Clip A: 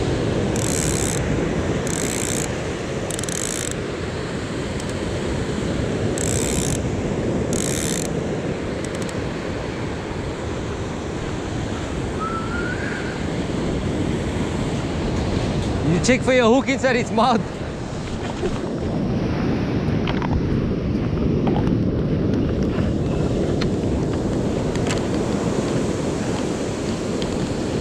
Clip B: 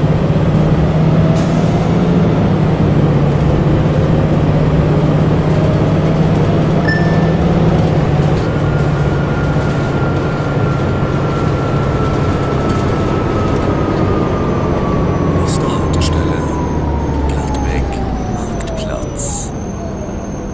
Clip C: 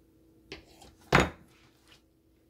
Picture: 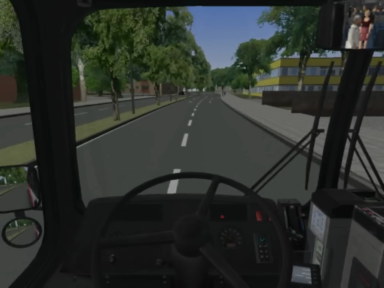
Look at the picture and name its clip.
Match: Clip B